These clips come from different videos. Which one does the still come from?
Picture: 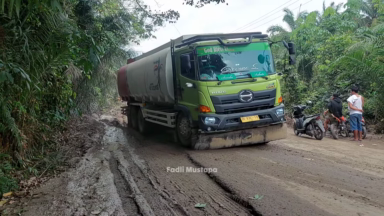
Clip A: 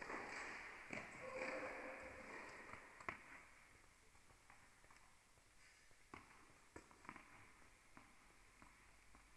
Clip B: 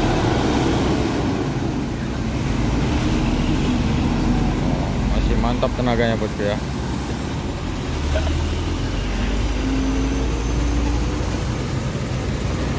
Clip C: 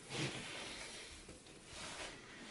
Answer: B